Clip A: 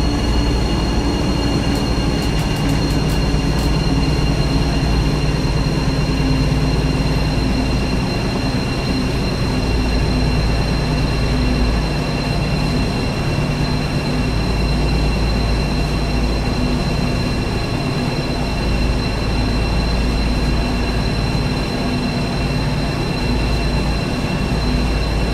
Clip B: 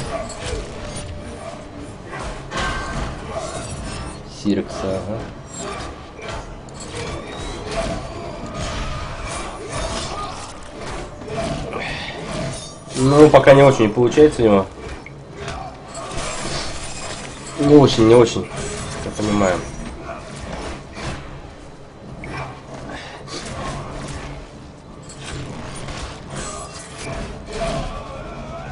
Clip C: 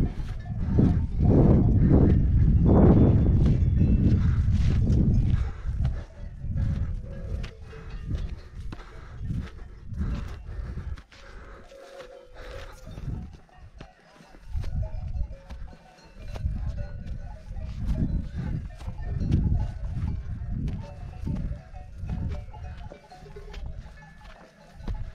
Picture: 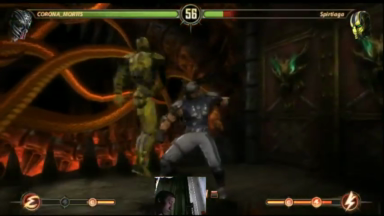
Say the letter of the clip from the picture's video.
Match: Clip B